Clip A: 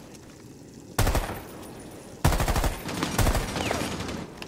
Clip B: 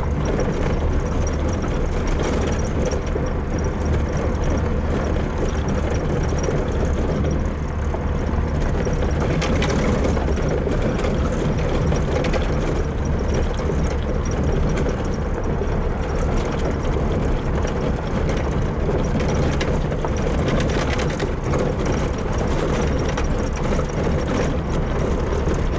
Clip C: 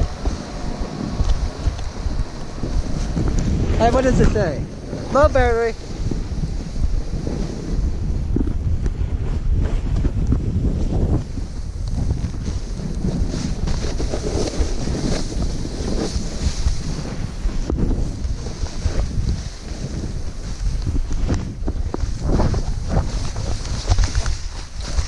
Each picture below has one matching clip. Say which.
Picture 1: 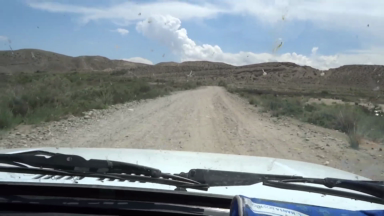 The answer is B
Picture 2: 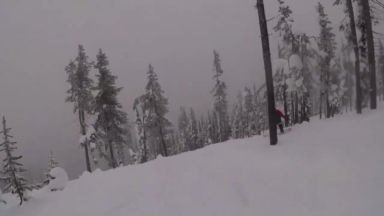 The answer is C